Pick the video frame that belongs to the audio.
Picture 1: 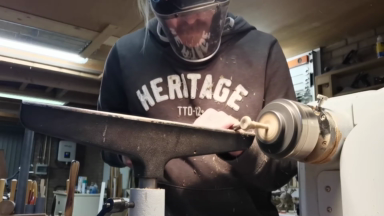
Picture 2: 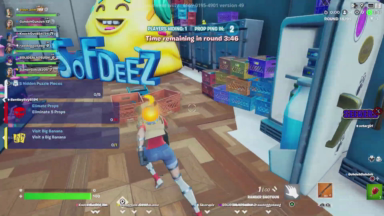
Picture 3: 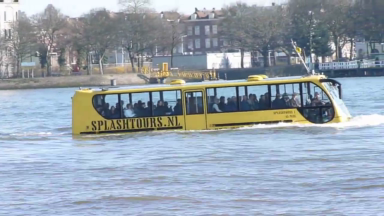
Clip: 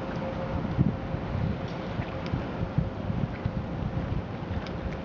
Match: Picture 3